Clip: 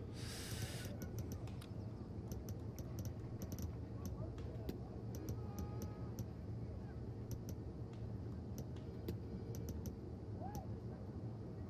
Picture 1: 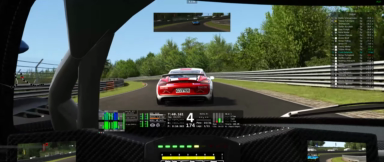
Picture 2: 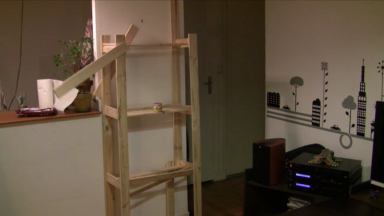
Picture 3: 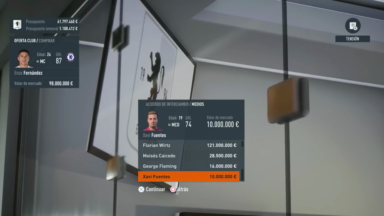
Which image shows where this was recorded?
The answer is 3